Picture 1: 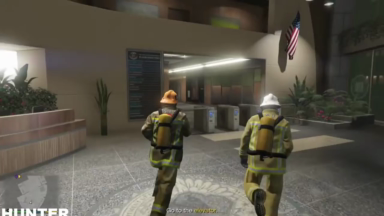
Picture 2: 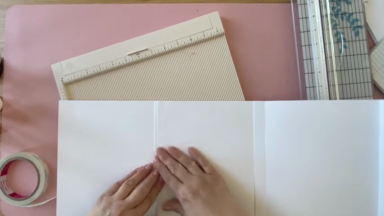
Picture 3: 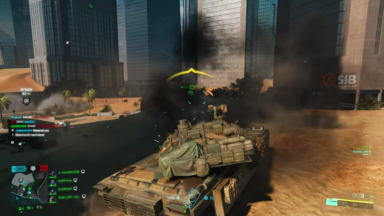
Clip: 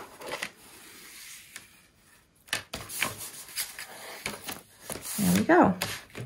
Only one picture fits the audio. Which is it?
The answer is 2